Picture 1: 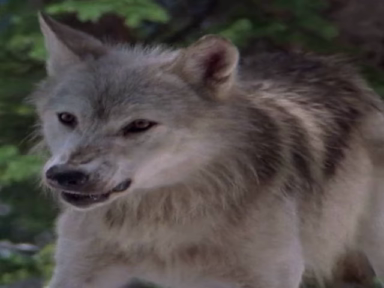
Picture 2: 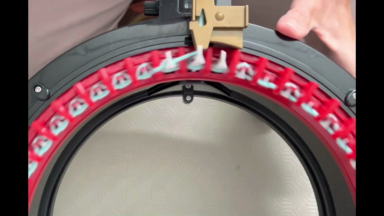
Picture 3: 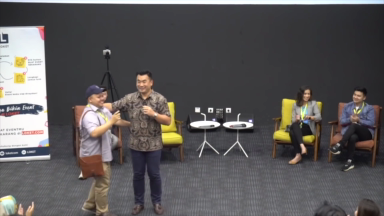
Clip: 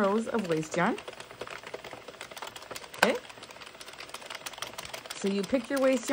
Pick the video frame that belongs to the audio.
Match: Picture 2